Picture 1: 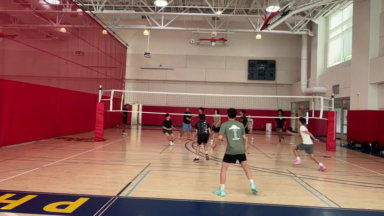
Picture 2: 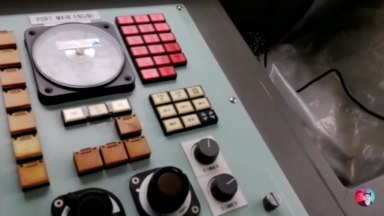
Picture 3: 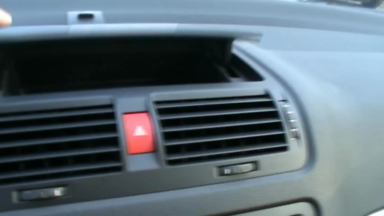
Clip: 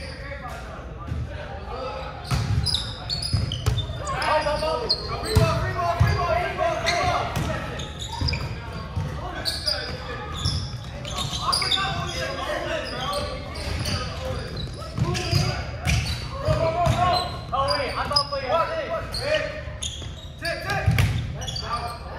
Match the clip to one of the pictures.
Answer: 1